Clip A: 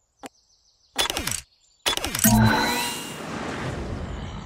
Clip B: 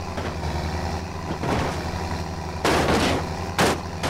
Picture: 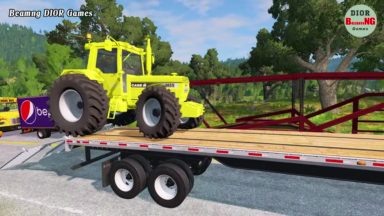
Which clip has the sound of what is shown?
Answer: B